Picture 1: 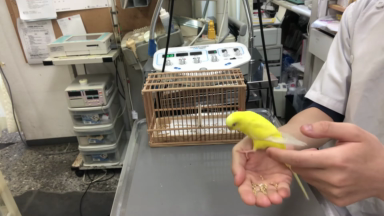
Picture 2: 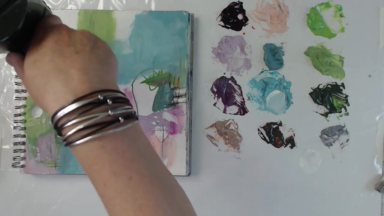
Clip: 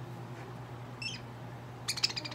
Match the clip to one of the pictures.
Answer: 1